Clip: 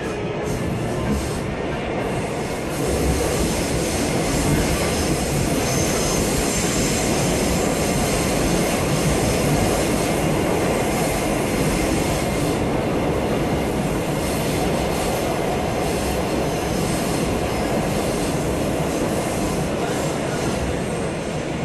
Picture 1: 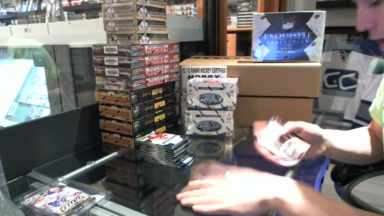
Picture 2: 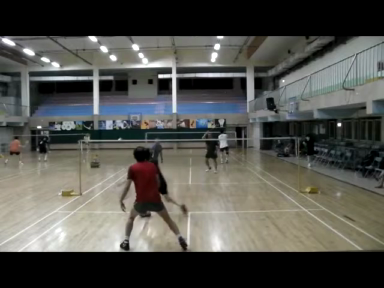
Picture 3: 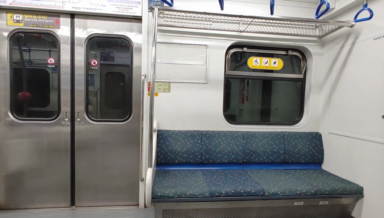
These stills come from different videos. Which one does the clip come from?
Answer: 3